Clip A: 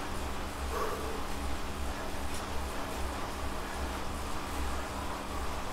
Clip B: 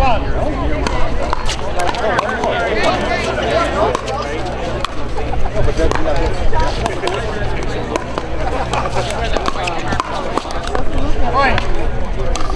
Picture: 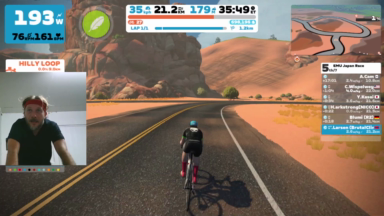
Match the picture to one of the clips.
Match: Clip A